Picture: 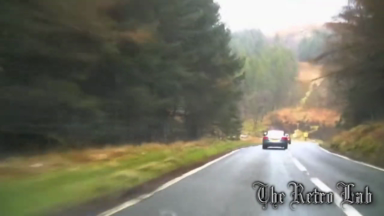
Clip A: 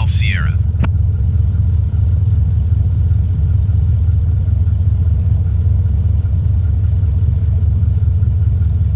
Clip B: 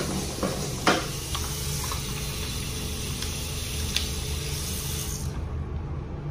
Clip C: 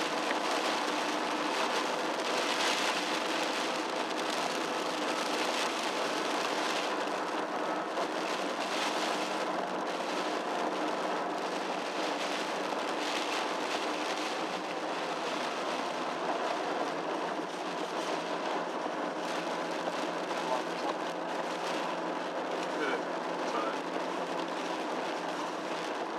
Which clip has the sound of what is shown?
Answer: C